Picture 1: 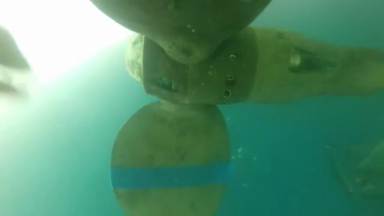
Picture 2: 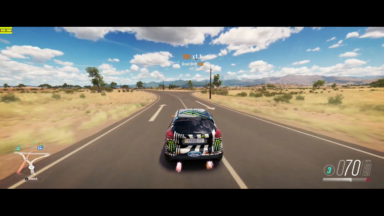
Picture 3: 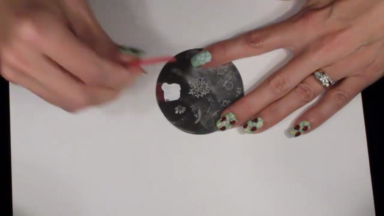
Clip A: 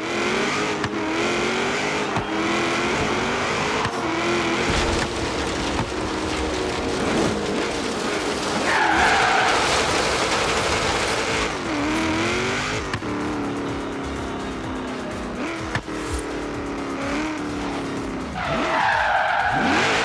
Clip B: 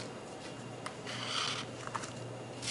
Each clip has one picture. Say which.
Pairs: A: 2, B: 3